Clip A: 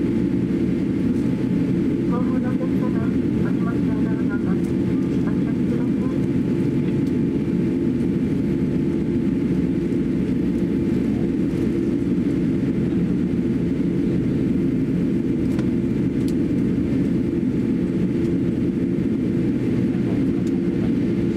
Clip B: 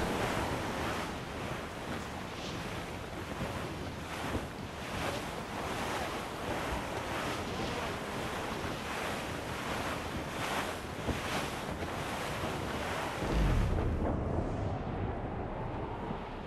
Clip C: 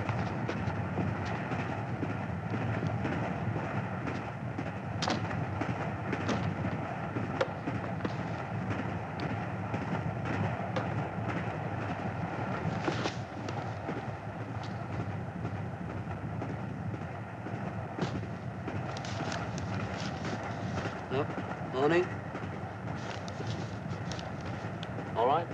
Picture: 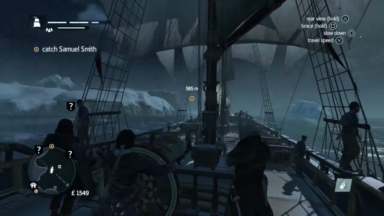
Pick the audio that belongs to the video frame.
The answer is B